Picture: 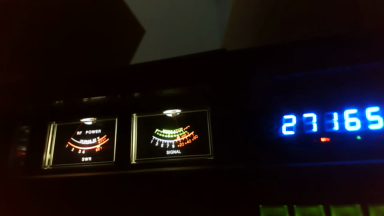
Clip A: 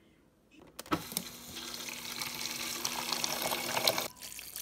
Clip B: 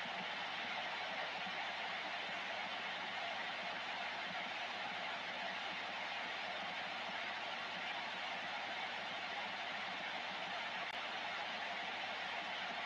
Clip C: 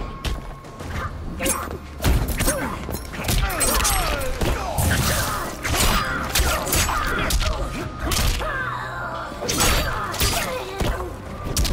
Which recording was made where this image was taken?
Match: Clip B